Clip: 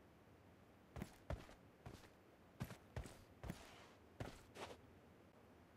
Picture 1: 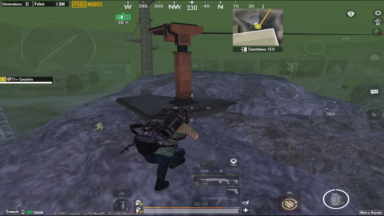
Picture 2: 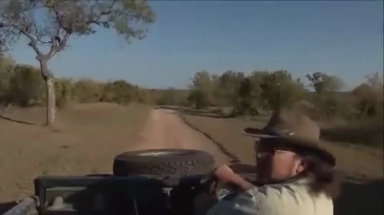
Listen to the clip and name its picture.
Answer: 1